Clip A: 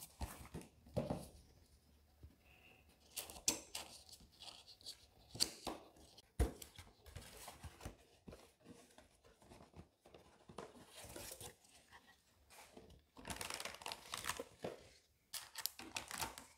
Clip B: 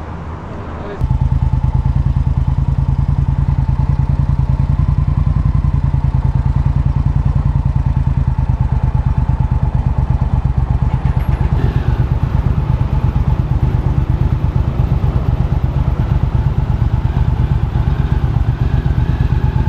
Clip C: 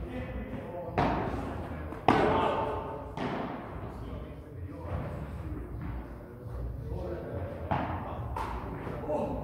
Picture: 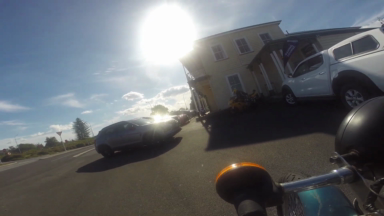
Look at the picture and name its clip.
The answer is B